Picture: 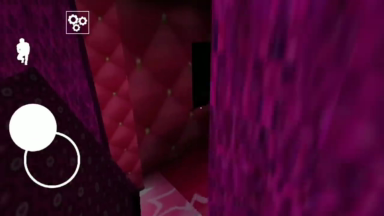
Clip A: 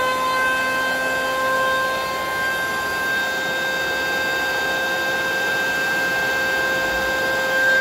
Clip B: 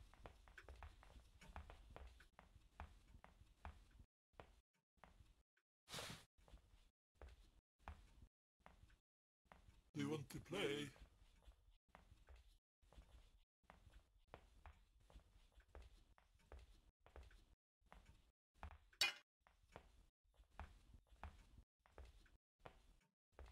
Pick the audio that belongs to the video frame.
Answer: B